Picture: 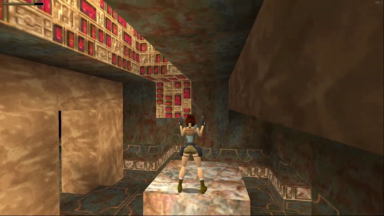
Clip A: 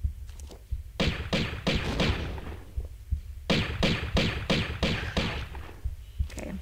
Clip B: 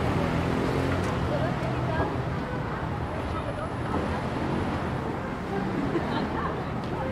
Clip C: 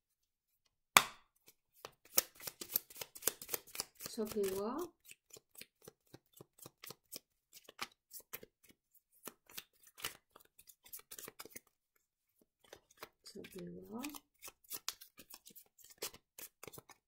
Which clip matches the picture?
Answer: A